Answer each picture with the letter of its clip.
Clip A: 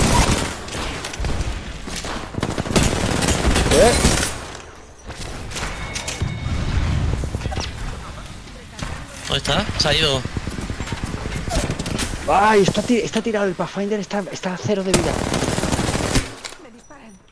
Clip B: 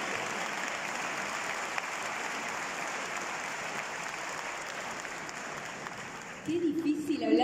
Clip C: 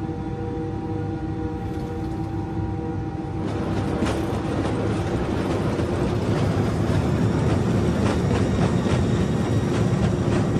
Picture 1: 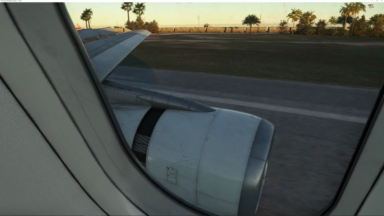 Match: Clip C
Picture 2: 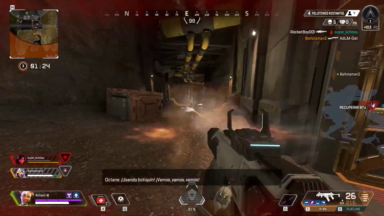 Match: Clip A